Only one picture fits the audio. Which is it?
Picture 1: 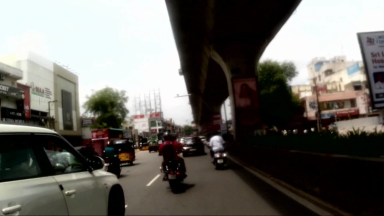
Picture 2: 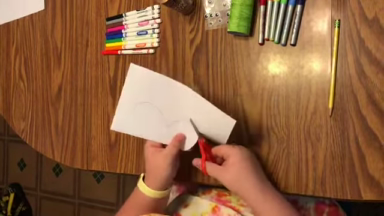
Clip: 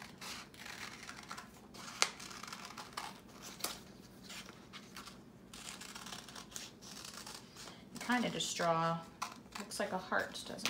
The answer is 2